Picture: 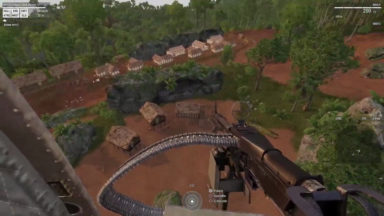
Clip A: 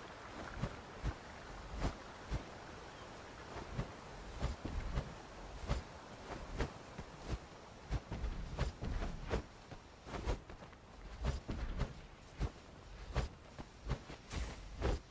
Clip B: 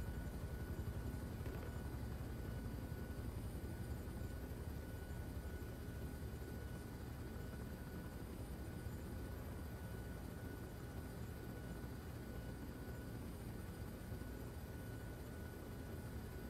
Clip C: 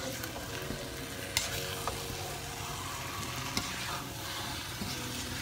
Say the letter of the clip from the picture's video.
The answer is B